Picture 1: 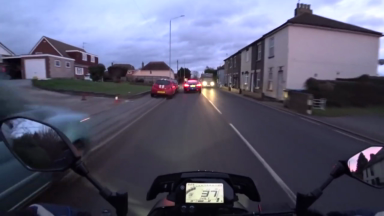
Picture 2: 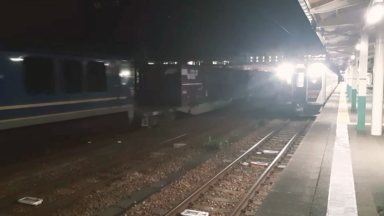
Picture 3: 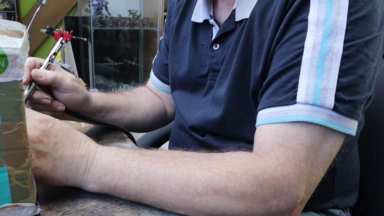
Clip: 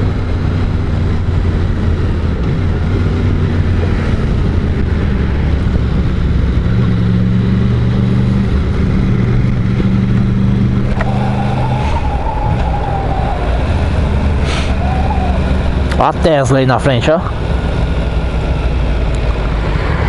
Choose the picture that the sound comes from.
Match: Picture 1